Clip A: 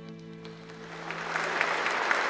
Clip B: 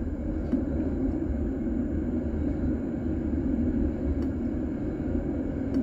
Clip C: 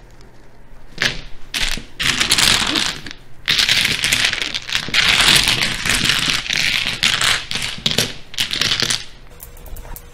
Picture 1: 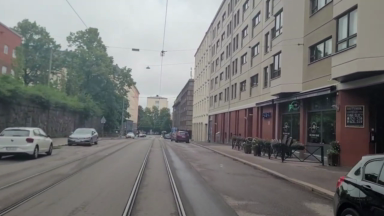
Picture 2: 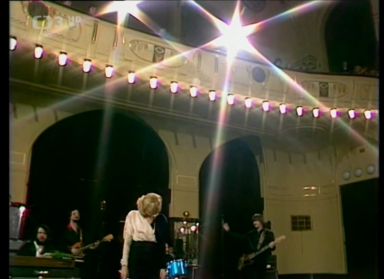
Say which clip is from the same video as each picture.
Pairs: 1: B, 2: A